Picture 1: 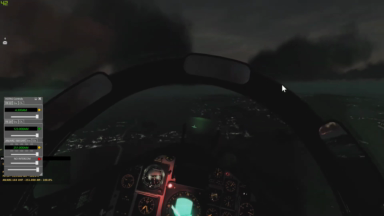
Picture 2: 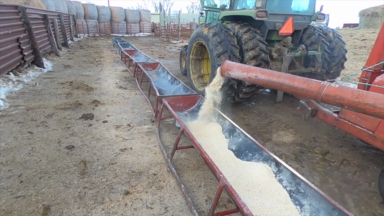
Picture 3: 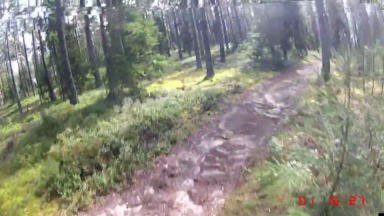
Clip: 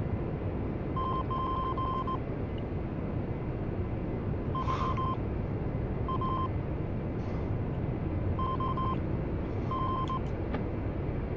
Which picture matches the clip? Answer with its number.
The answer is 1